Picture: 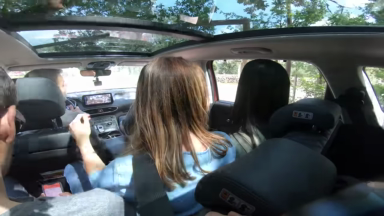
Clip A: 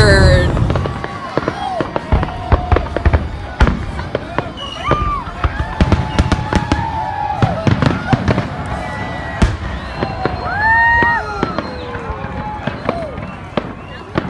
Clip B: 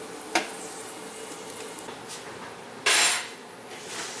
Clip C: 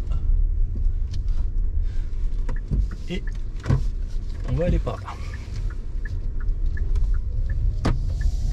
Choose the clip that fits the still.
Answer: C